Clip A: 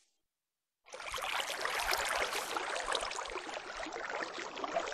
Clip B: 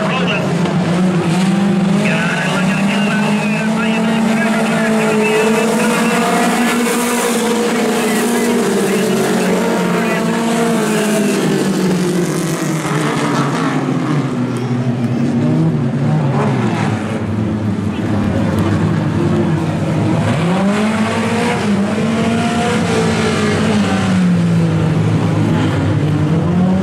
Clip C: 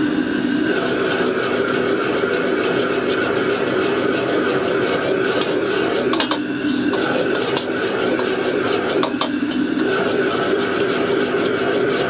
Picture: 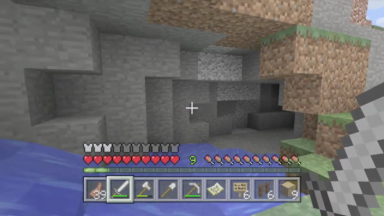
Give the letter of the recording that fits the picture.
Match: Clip A